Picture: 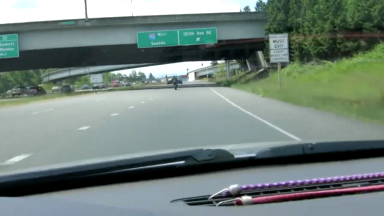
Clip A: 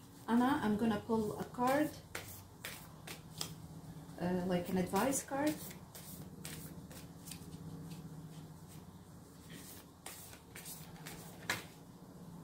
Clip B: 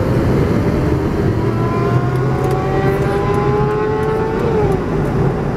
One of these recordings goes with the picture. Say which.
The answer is B